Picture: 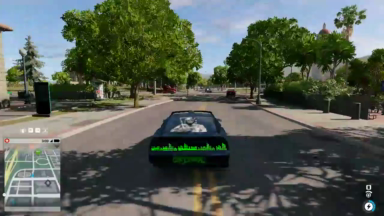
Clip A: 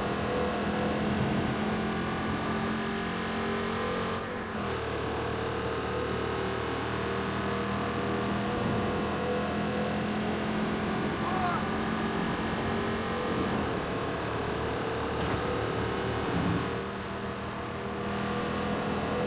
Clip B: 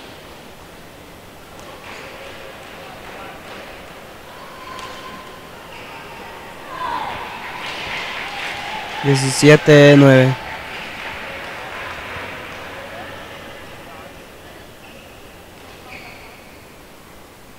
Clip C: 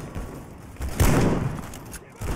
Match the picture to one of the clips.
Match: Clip A